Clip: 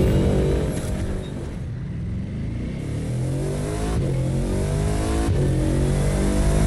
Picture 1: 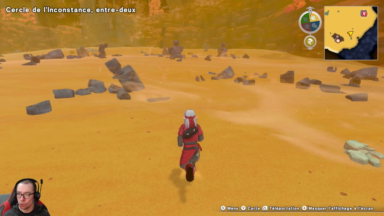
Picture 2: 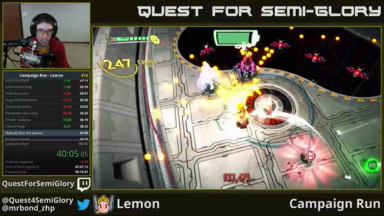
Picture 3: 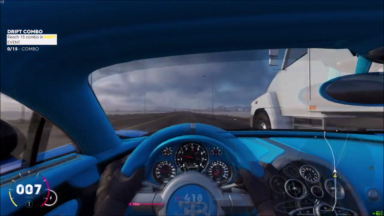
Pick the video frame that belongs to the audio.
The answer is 3